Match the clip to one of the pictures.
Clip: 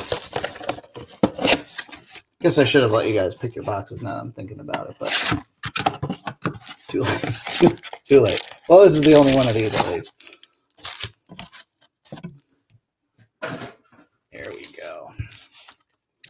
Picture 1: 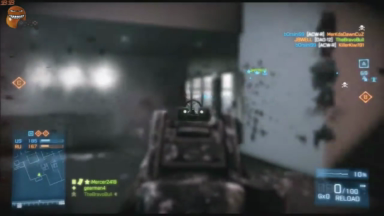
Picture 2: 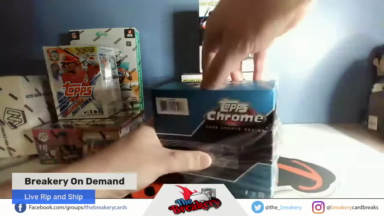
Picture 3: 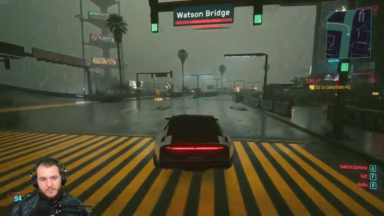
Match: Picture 2